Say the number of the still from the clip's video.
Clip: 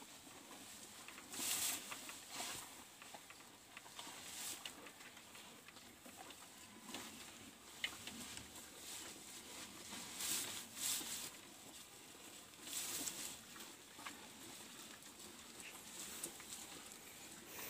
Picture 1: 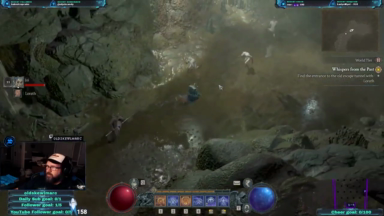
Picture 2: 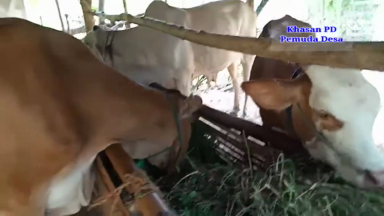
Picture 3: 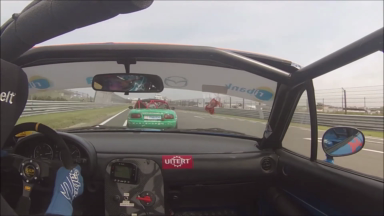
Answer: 2